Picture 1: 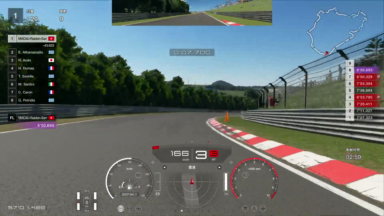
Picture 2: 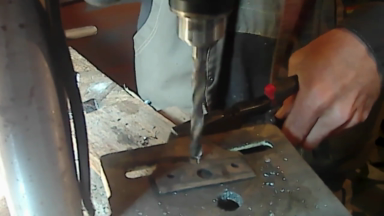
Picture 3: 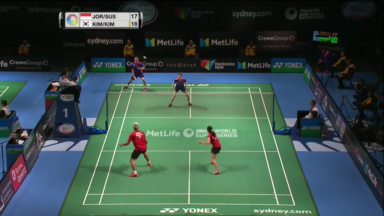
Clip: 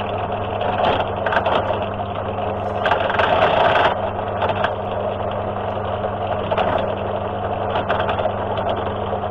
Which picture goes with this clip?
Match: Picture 2